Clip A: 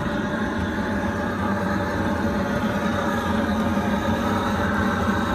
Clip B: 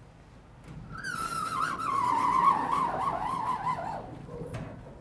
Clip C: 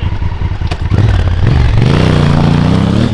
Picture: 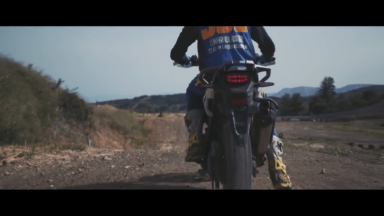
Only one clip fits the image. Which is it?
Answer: C